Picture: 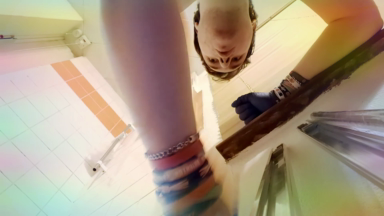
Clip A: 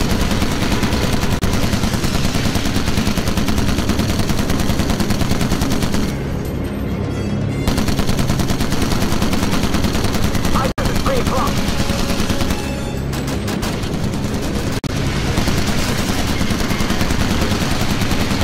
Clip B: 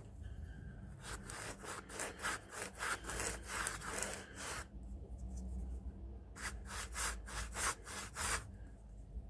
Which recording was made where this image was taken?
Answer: B